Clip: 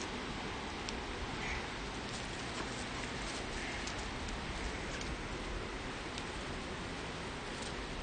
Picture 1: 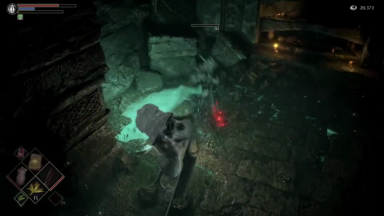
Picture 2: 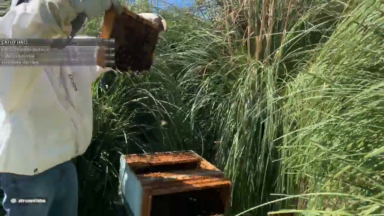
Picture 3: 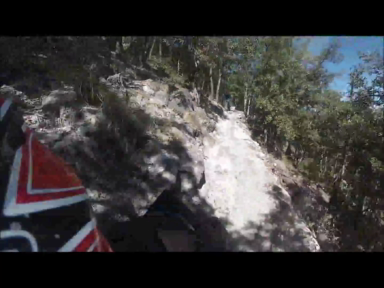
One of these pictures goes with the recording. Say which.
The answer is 2